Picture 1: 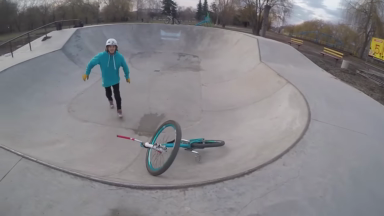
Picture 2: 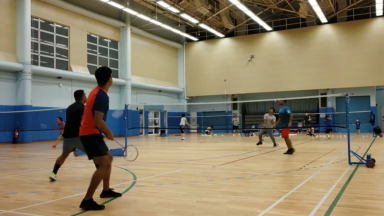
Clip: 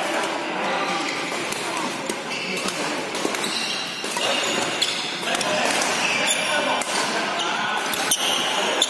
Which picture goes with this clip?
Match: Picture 2